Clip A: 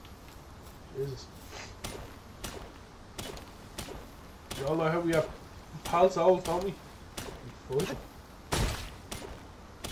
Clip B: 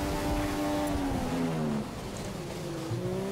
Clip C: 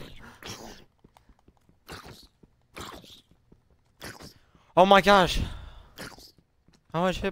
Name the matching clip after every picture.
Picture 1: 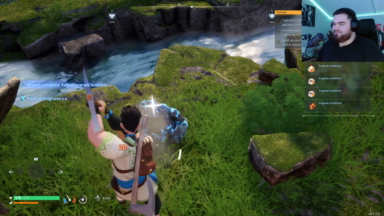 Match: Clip A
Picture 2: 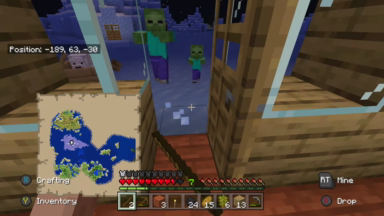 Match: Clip C